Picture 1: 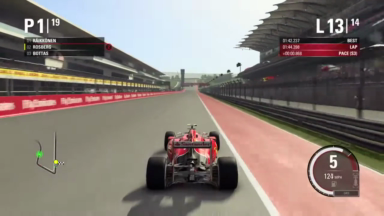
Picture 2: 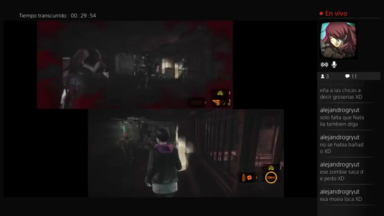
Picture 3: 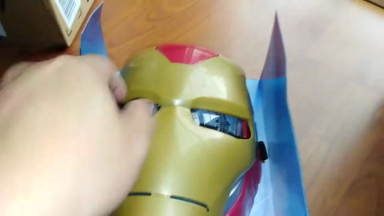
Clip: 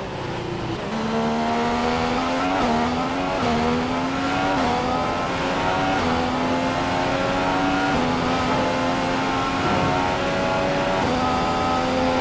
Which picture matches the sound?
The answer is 1